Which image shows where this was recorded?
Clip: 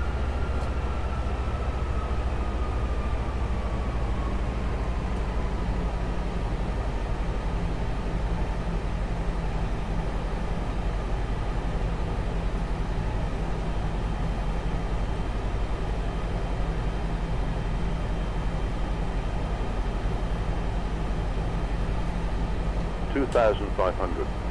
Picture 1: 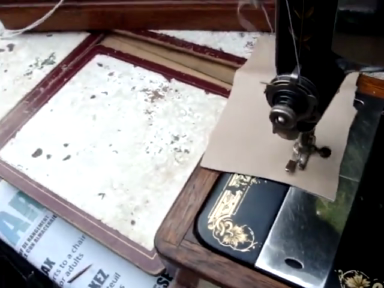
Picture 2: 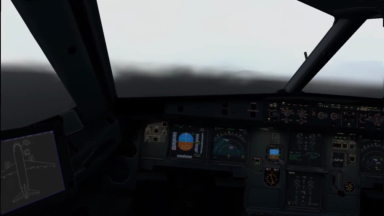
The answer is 2